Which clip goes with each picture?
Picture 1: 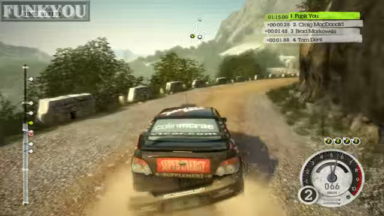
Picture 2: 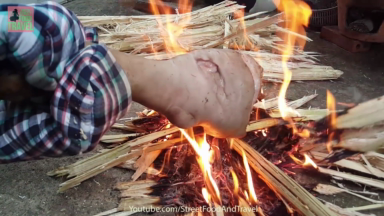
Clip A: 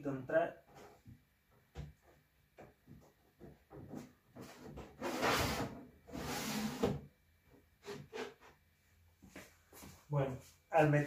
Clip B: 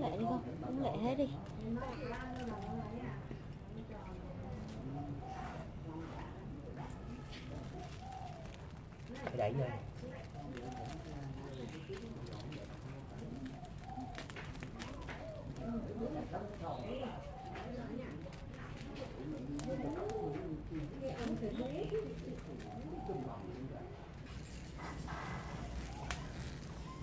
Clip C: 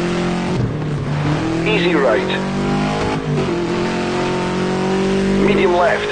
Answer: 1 C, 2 B